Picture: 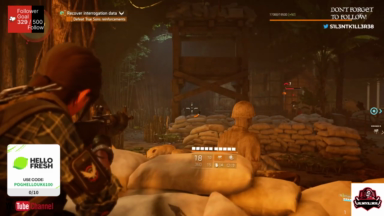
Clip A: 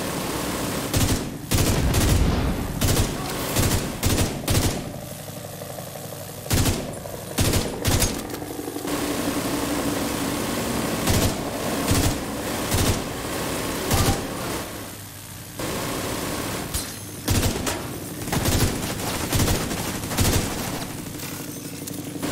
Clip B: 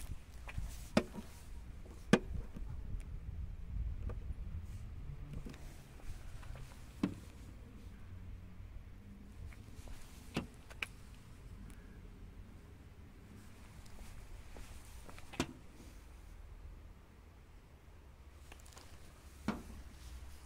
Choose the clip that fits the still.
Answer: A